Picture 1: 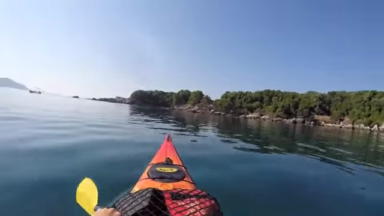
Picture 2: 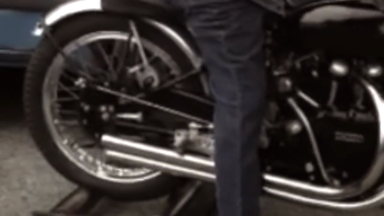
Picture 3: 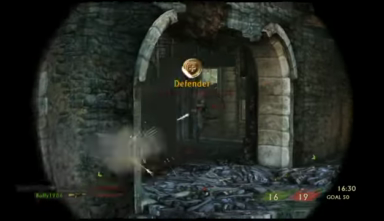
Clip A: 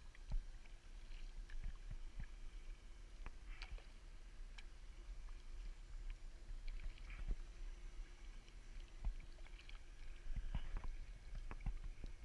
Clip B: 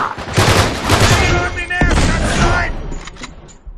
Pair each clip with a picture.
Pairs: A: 1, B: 3